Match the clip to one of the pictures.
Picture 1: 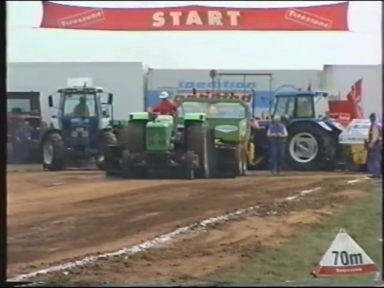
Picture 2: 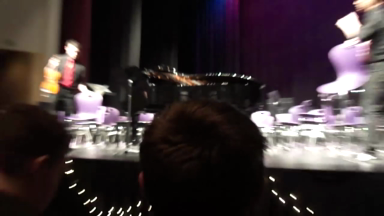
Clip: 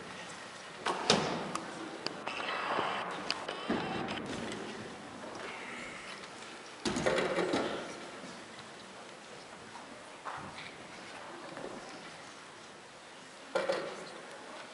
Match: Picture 2